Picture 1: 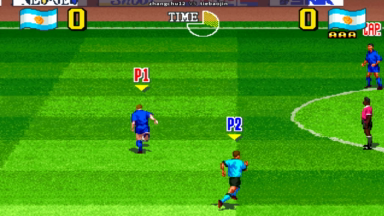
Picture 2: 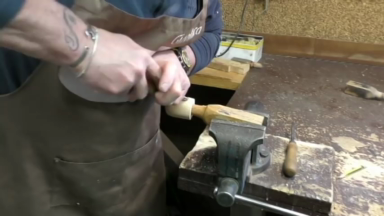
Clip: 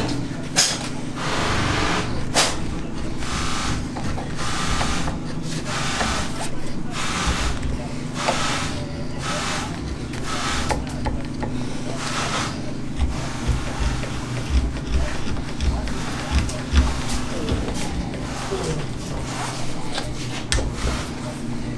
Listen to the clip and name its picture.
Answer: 2